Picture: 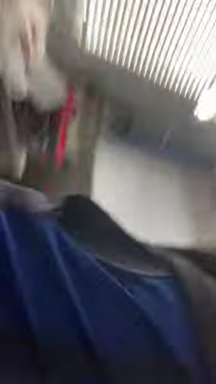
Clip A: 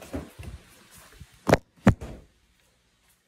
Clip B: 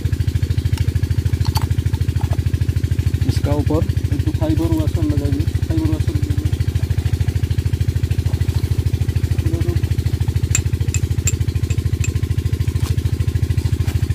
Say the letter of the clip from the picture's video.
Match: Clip A